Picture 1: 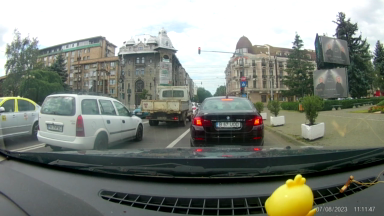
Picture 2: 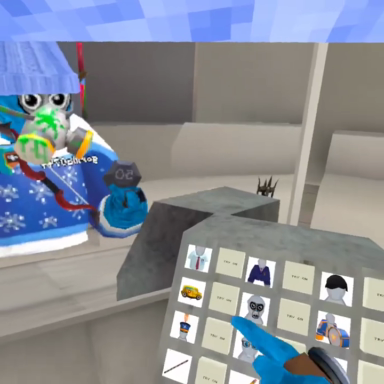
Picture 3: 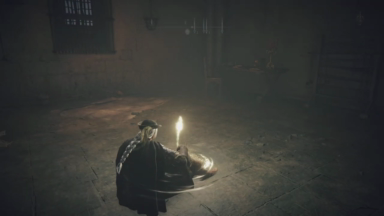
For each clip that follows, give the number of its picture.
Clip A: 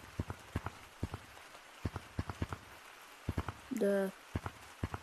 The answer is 2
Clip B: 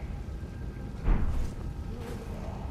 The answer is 3